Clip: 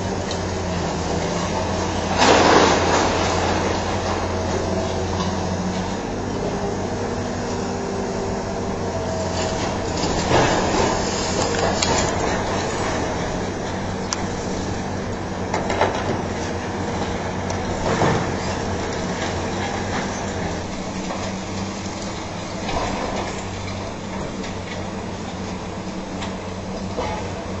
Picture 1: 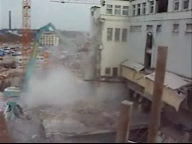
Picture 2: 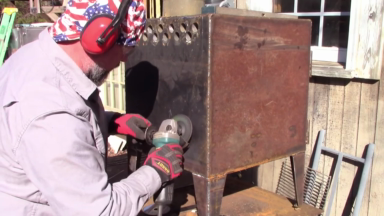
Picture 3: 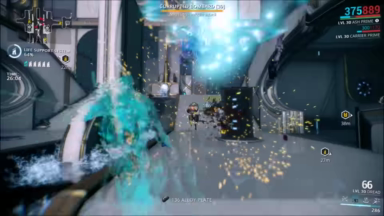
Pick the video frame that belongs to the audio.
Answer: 1